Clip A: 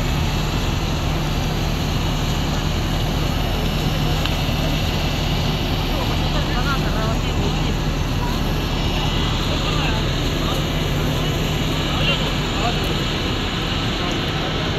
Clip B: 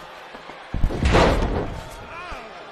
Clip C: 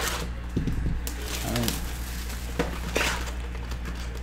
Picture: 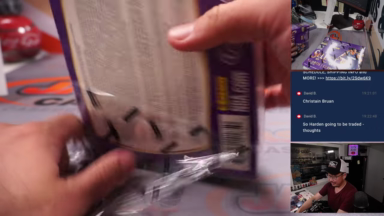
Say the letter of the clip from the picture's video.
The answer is C